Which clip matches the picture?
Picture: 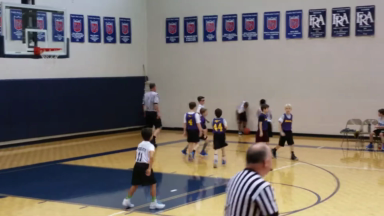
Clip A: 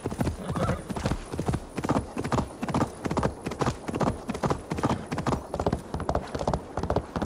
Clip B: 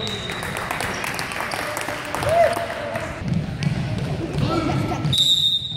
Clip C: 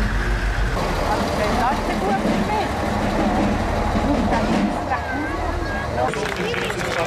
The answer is B